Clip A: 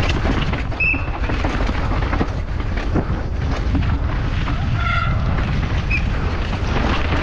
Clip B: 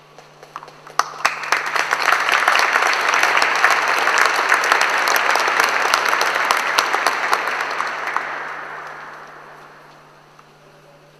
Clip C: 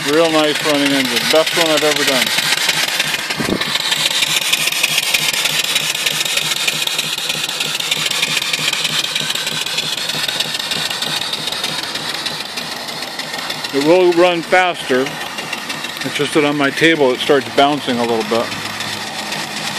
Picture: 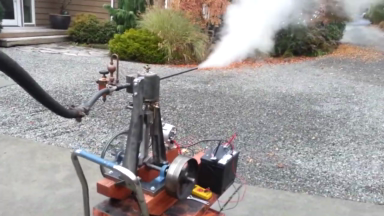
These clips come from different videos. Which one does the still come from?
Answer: C